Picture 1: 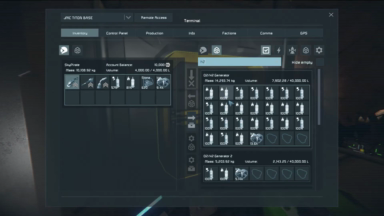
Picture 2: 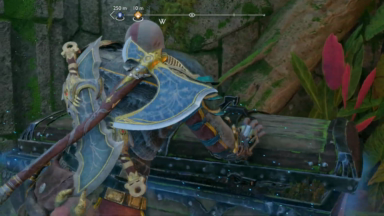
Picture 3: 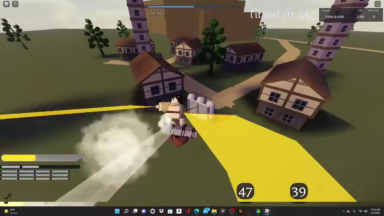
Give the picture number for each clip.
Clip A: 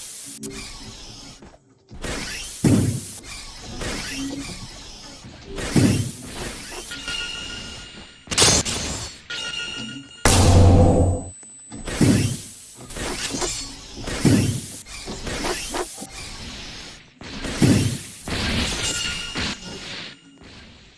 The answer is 3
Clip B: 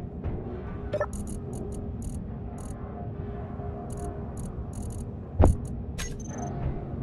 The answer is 1